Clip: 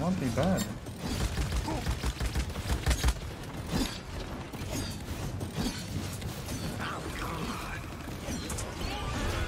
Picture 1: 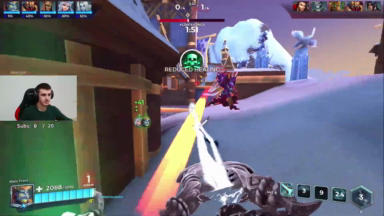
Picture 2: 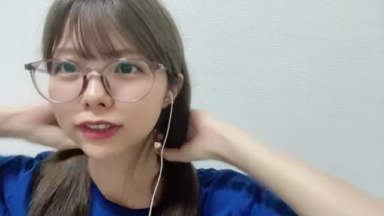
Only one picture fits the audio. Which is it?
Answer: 1